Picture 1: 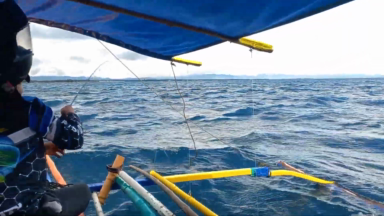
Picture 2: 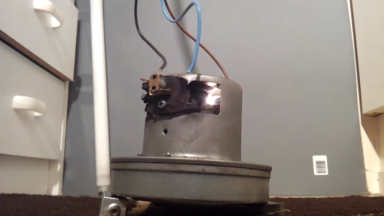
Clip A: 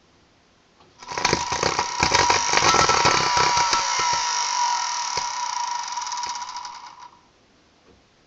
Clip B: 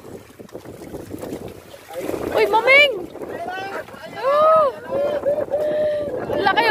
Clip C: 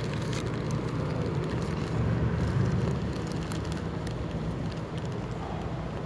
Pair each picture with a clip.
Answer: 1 B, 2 A